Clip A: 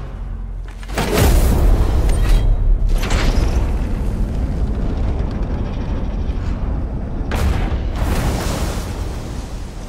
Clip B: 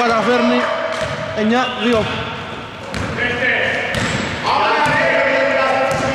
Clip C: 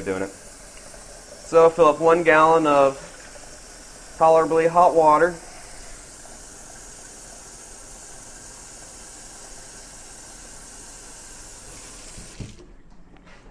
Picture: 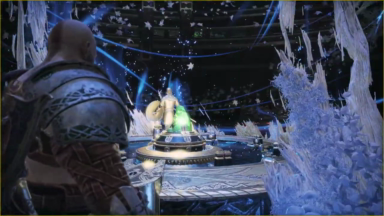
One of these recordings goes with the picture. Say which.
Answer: A